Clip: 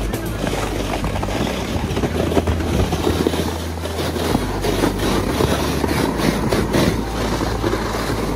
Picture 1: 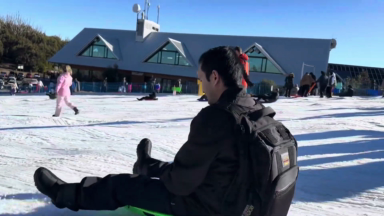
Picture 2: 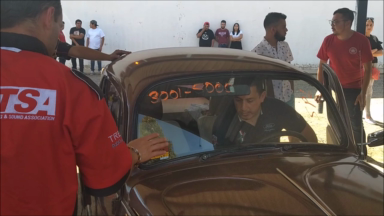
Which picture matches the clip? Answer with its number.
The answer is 1